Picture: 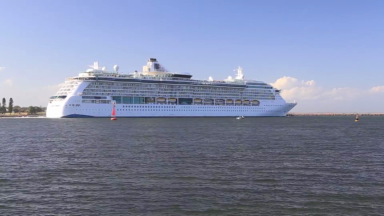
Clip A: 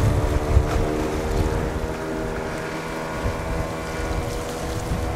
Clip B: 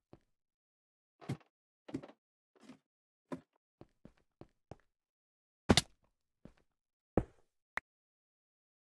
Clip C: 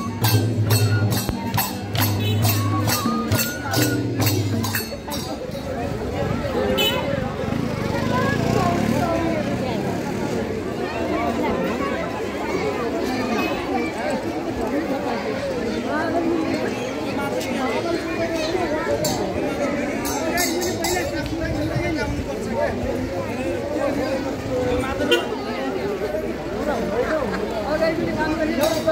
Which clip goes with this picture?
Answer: A